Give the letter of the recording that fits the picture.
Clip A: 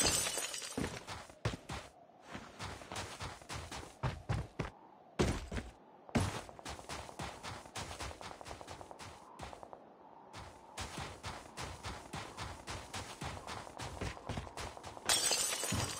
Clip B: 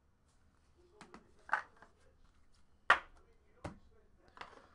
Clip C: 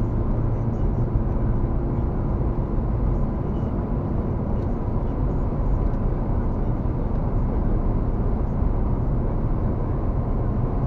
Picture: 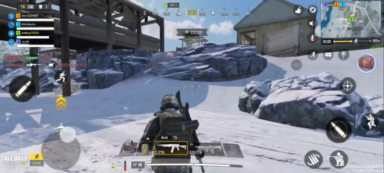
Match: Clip A